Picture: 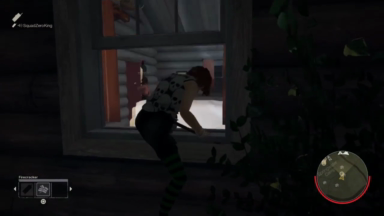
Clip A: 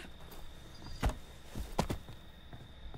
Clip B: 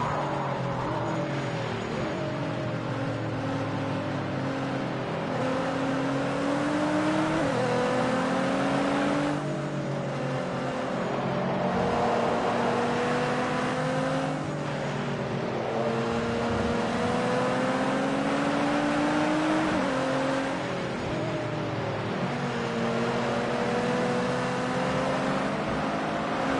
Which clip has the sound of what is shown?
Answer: A